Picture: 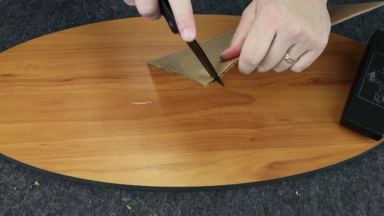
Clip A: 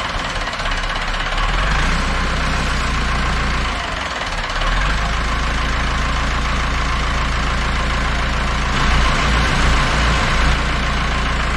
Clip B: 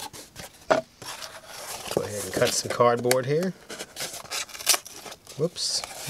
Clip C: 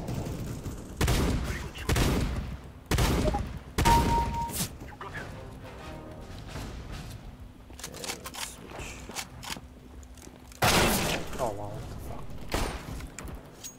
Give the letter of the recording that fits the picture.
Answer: B